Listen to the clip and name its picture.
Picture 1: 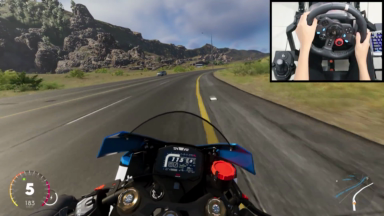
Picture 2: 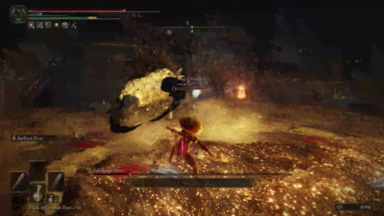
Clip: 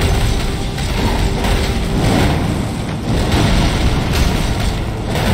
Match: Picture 2